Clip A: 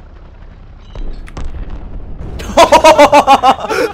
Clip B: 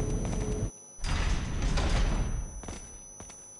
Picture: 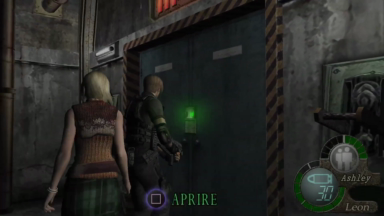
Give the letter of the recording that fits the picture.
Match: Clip B